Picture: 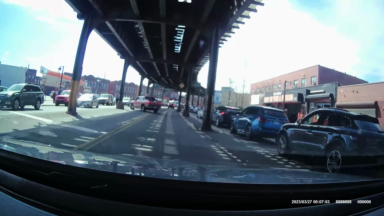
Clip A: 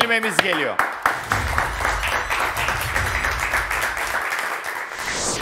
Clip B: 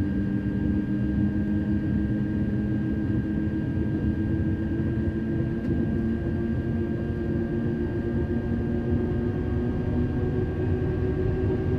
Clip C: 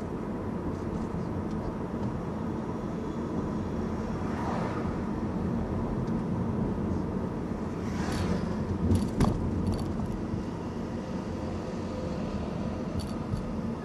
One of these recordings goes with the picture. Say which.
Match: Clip C